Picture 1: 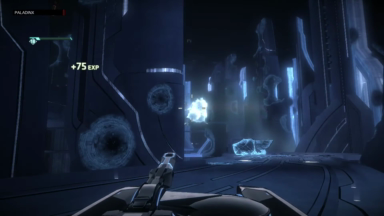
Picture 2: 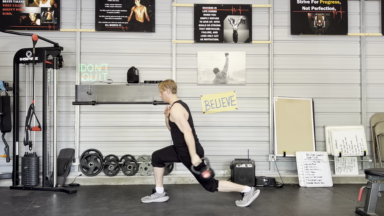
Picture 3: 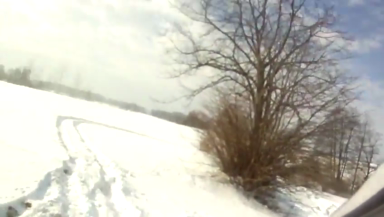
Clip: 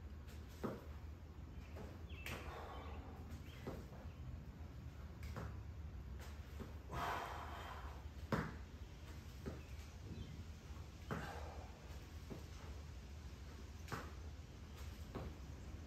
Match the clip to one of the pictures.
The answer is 2